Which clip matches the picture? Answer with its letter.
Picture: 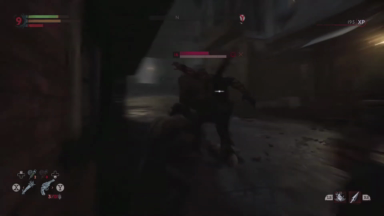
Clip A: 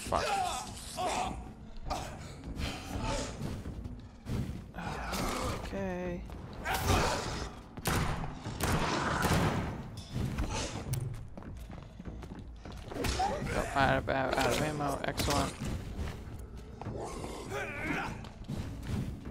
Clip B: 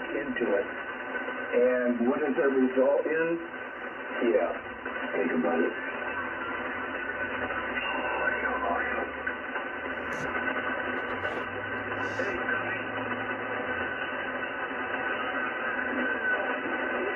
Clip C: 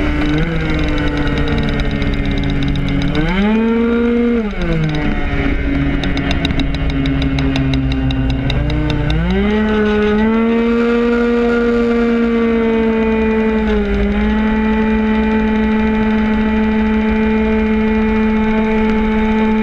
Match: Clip A